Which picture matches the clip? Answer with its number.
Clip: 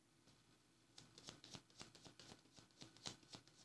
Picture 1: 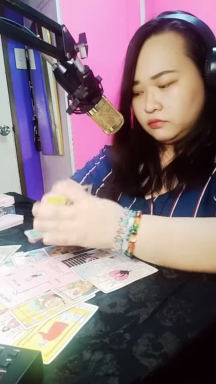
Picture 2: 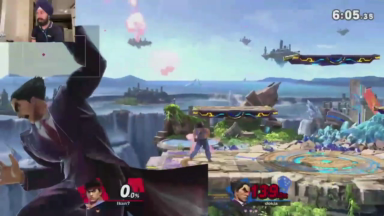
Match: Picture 1